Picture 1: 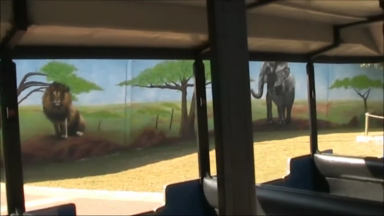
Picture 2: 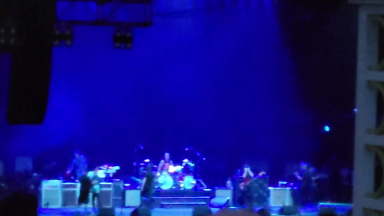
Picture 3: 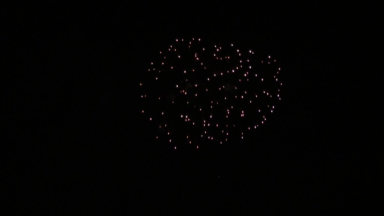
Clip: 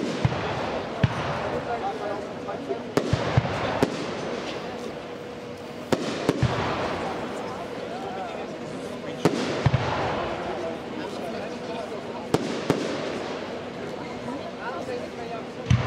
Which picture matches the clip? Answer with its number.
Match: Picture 3